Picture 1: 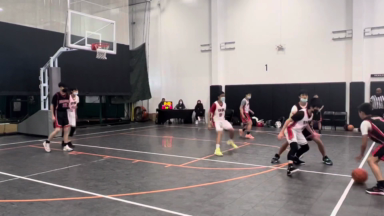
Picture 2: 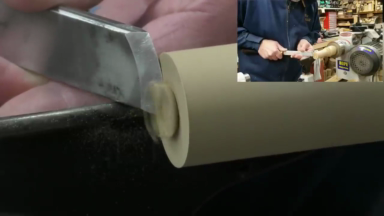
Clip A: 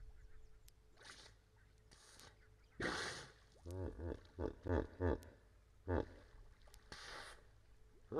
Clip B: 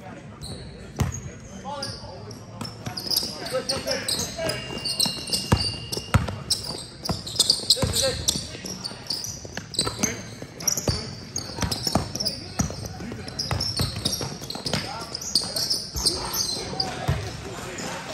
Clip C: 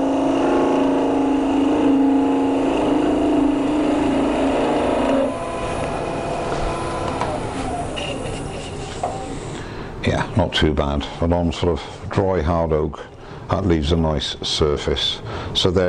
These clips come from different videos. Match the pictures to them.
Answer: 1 B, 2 C